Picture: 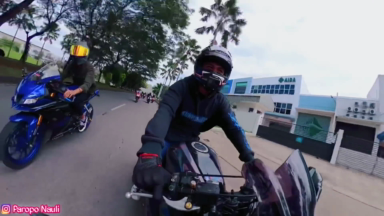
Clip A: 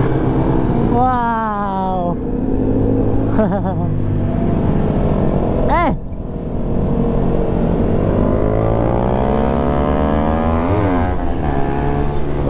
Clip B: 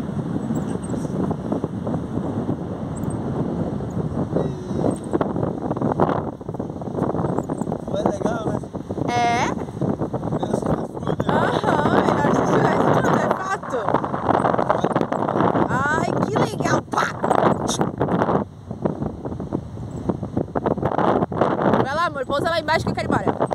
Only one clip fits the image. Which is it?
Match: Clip A